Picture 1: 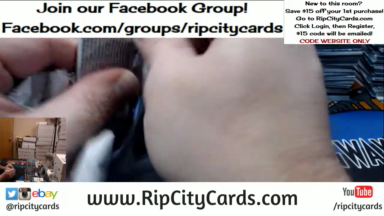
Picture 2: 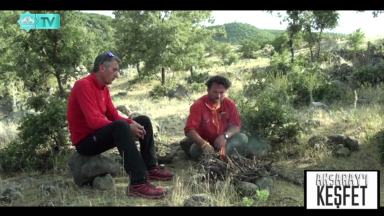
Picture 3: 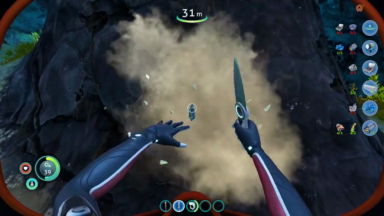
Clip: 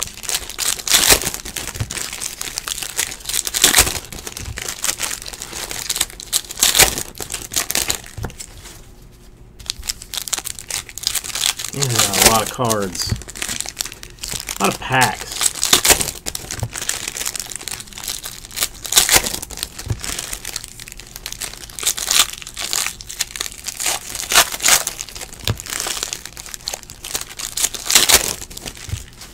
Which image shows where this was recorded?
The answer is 1